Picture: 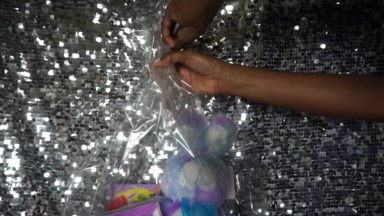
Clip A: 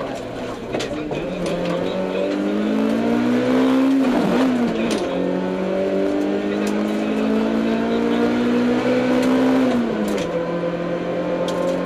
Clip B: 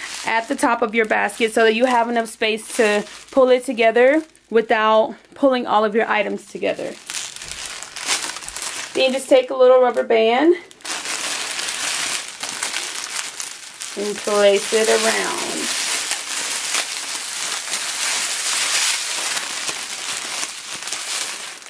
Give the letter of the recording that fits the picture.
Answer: B